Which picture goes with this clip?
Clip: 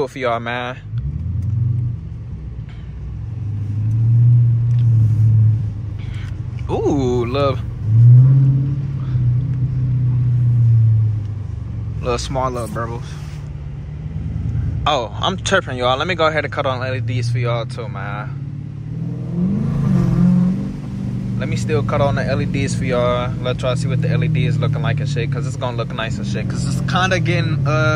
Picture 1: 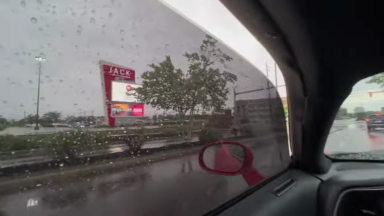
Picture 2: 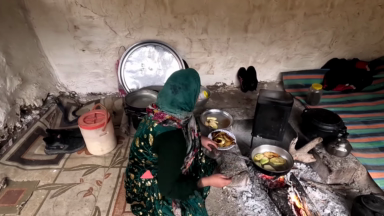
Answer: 1